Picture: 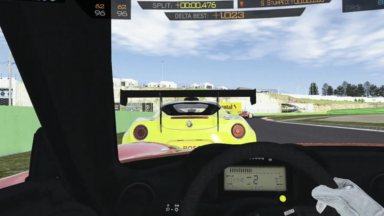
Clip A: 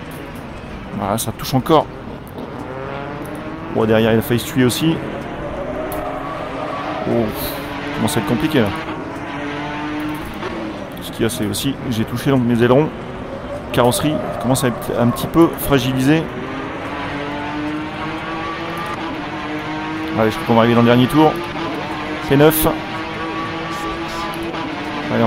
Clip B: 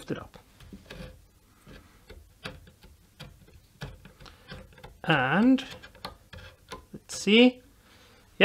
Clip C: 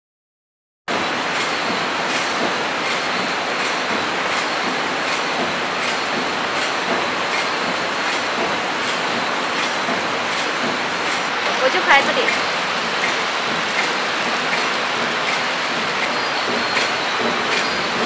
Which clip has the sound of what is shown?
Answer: A